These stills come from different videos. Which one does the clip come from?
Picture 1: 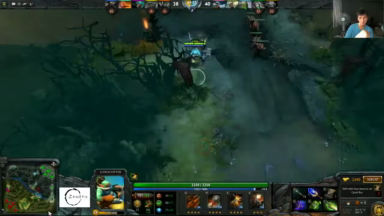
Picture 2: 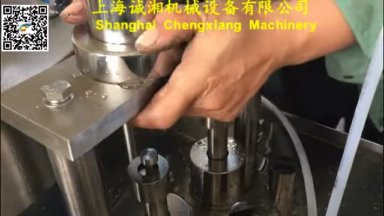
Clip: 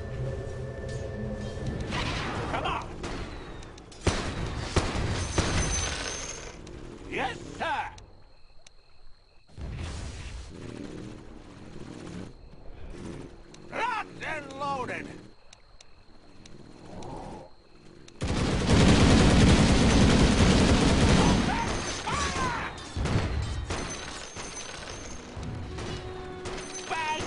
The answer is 1